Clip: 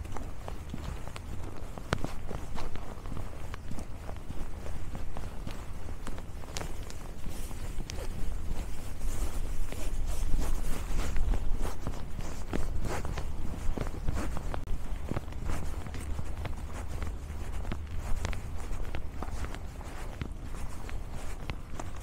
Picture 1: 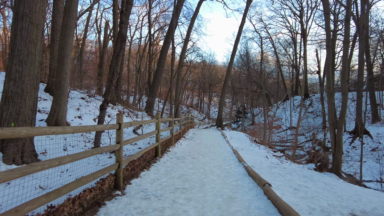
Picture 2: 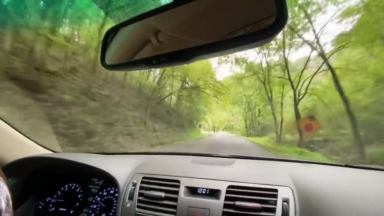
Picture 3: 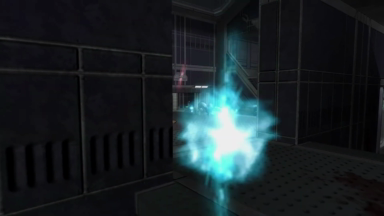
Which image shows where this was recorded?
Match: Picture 1